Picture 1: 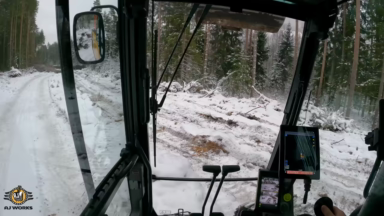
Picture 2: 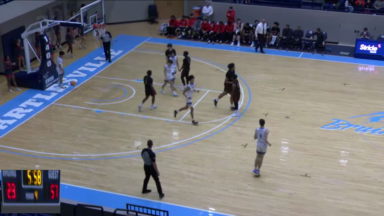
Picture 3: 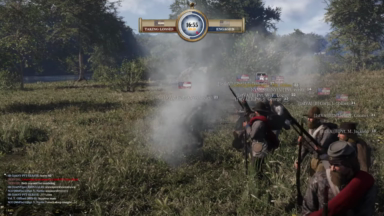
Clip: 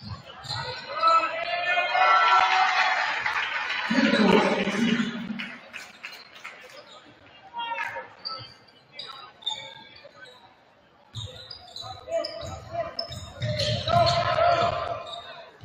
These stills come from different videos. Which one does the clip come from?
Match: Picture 2